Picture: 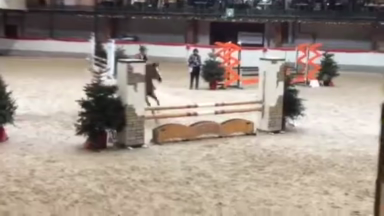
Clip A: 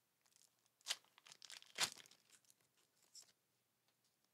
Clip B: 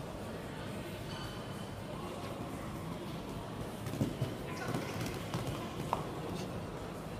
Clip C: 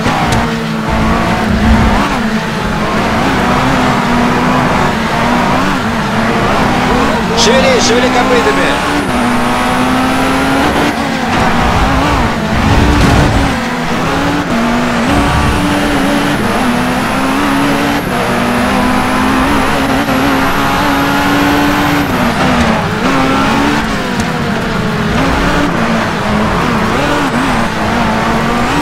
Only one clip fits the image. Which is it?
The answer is B